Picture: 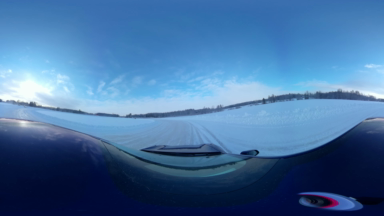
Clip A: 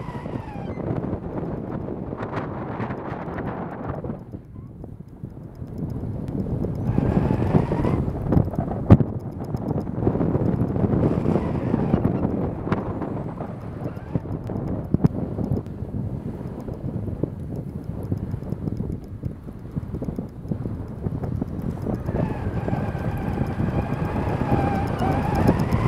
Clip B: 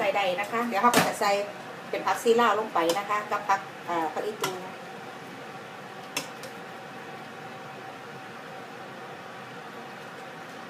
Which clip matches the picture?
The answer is A